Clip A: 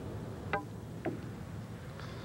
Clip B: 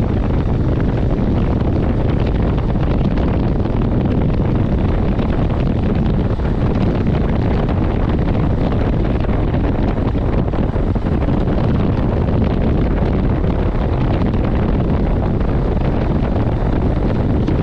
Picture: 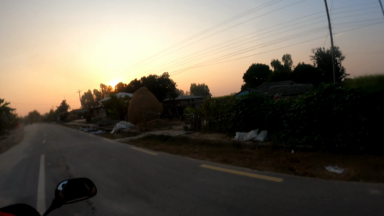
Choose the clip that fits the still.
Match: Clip B